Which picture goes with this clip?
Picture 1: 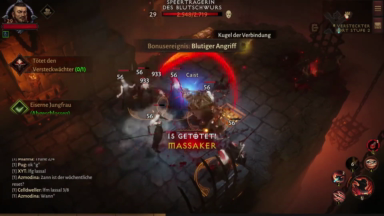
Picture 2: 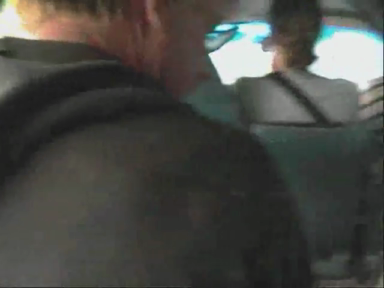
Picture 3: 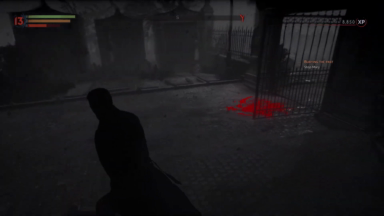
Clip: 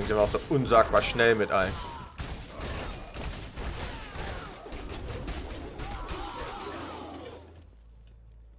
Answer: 1